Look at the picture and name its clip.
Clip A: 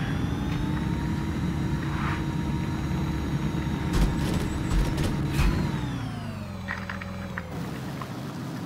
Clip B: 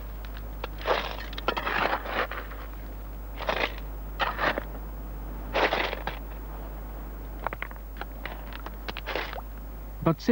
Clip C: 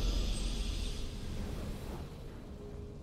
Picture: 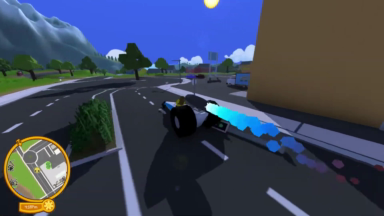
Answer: A